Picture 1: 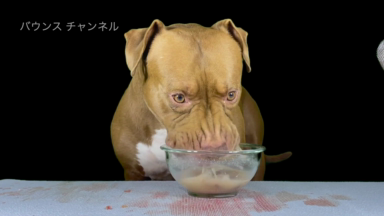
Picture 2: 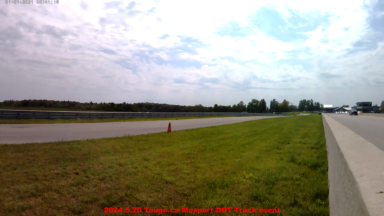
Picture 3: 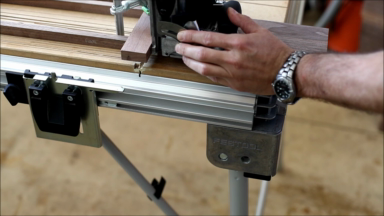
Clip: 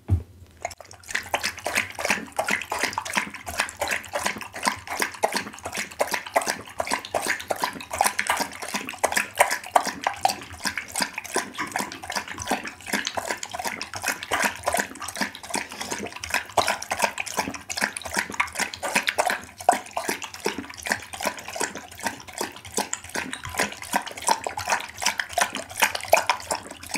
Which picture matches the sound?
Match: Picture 1